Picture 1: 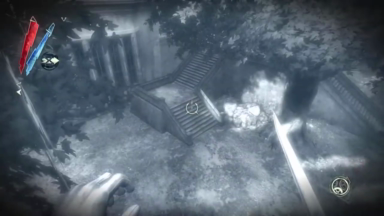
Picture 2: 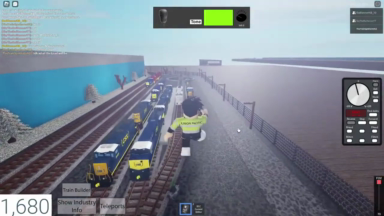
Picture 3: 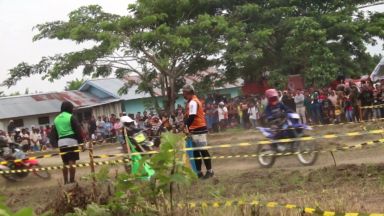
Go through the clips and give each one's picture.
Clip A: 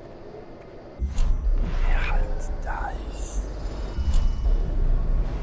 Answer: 1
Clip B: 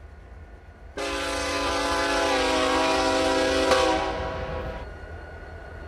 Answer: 2